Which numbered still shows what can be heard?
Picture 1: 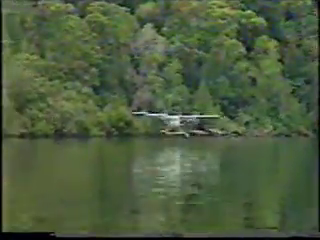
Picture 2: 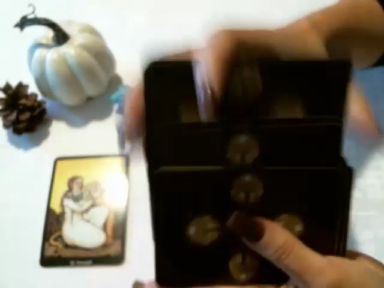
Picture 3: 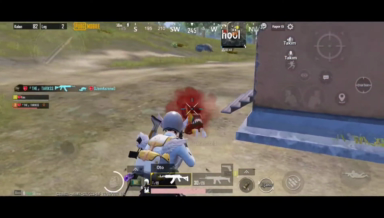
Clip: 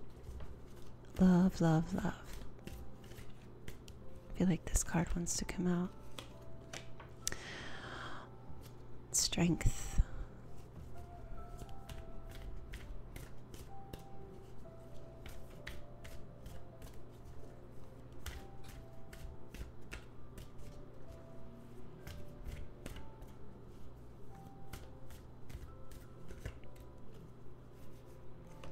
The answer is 2